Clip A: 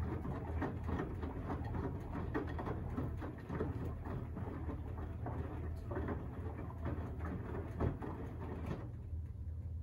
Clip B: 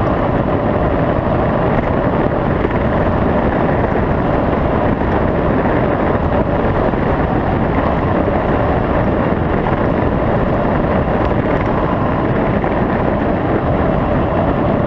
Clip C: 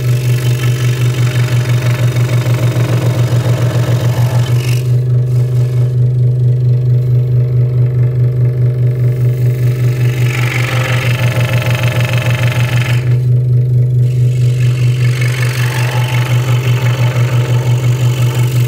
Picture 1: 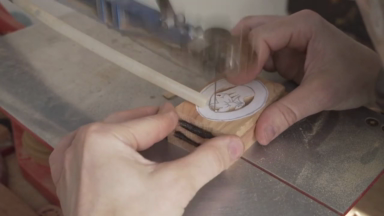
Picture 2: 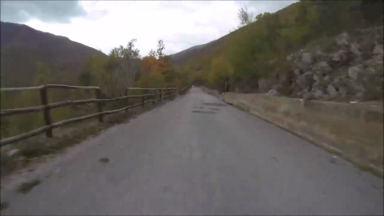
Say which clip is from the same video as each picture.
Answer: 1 C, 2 B